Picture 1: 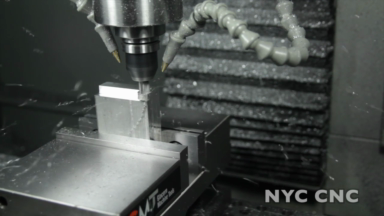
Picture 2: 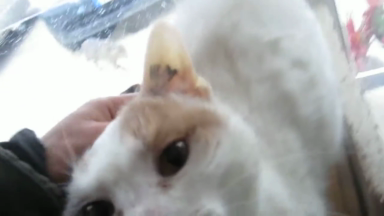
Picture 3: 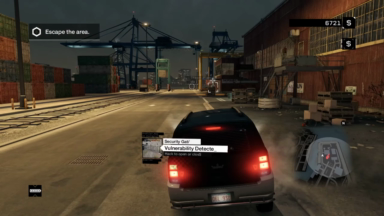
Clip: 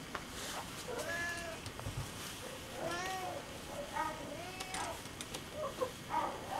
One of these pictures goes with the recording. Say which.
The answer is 2